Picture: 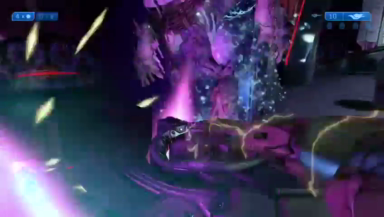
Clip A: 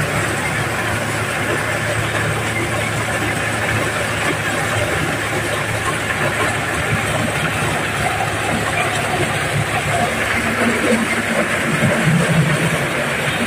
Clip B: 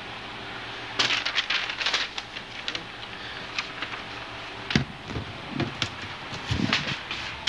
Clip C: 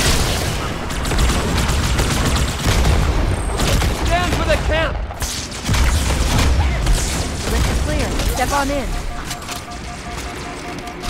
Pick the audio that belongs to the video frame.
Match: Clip C